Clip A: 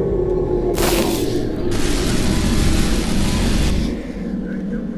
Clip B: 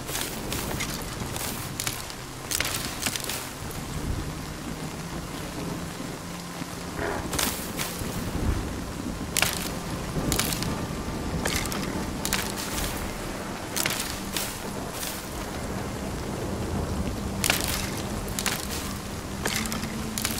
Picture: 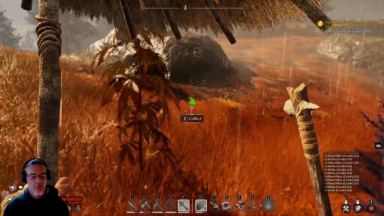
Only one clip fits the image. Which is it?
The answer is B